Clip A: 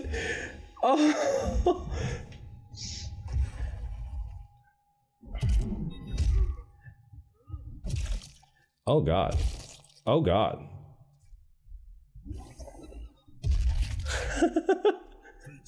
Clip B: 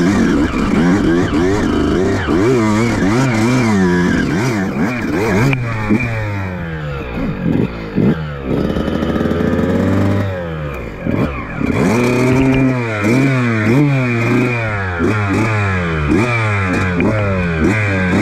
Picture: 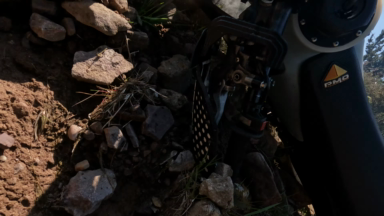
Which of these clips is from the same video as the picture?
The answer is B